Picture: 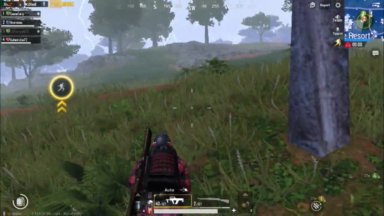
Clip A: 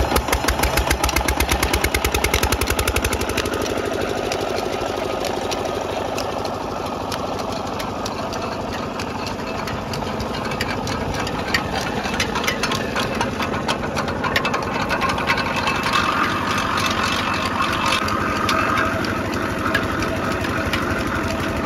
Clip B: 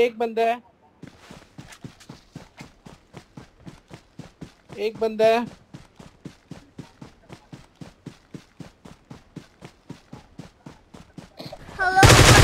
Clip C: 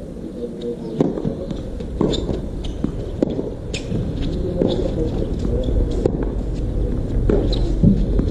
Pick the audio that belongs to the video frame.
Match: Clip B